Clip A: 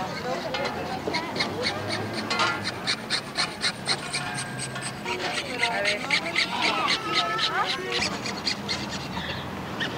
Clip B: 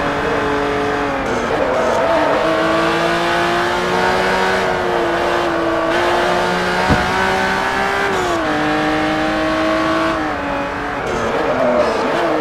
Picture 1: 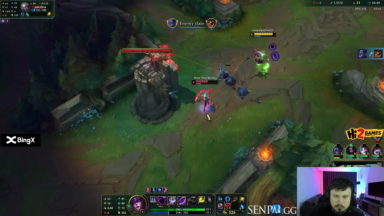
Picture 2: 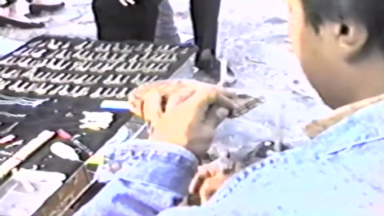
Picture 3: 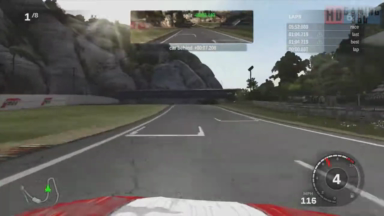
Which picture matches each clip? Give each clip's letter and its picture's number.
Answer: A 2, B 3